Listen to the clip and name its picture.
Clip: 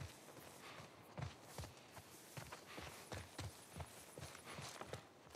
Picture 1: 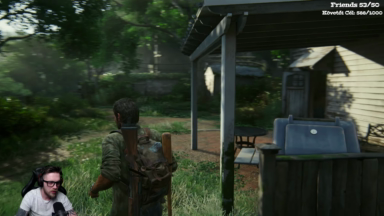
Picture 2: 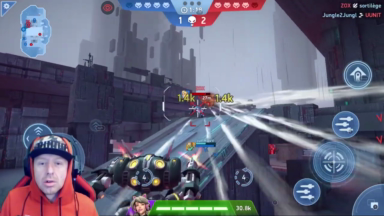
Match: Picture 1